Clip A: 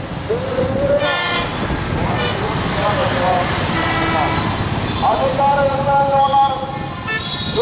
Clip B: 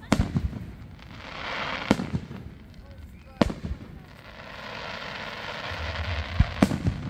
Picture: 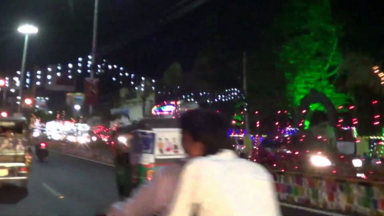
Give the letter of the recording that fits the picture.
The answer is A